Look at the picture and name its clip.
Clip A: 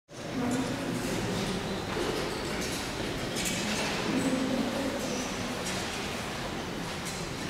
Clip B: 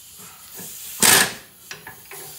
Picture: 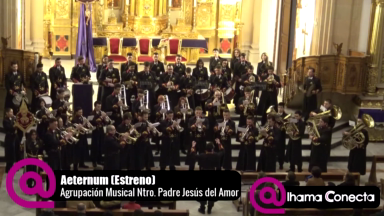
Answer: A